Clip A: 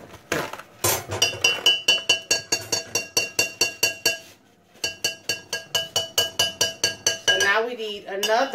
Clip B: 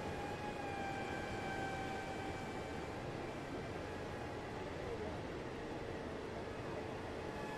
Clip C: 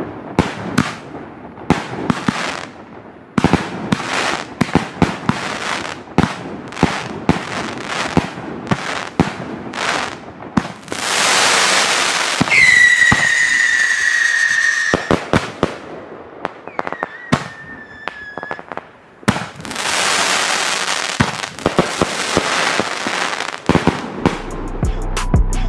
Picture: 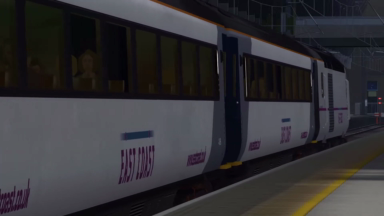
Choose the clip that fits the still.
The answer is B